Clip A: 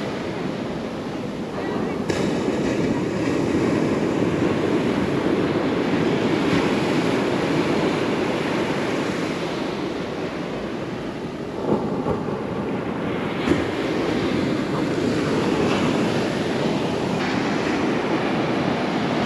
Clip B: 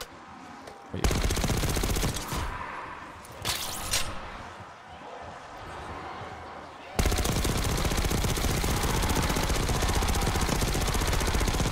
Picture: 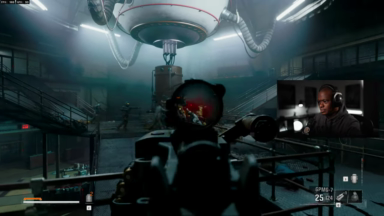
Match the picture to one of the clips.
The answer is B